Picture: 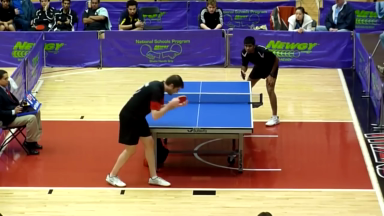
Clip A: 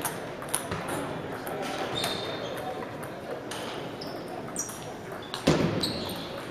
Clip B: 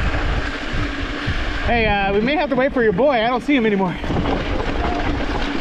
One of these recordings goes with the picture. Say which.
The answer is A